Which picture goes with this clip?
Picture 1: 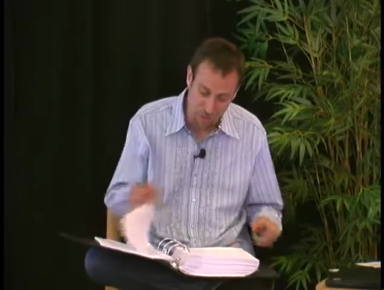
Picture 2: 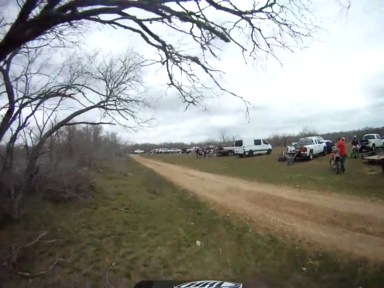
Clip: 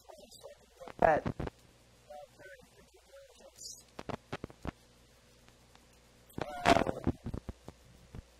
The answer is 1